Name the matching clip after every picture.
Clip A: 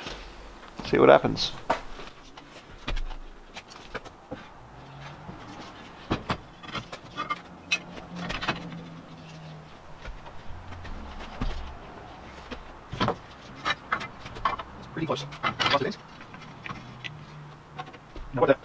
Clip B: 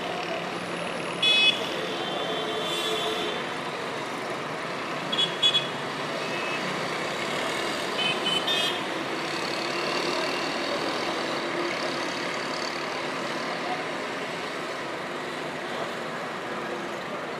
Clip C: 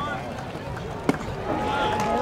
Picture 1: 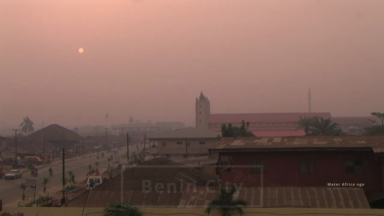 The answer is B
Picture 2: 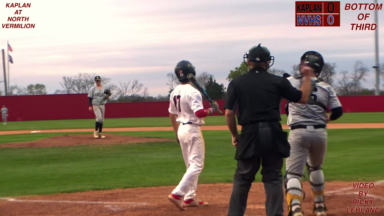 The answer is C